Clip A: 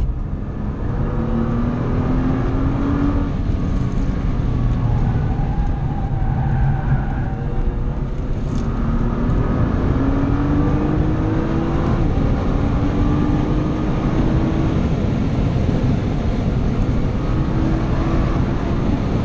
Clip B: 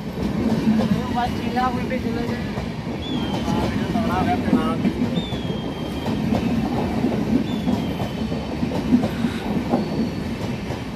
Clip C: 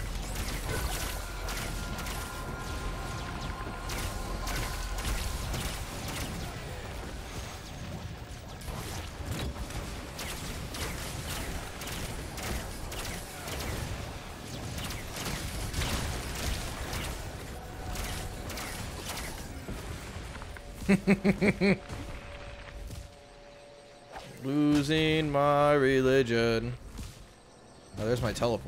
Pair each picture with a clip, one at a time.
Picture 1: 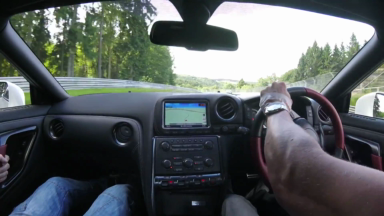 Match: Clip A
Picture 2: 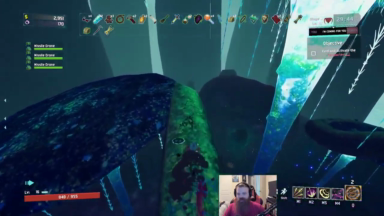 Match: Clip C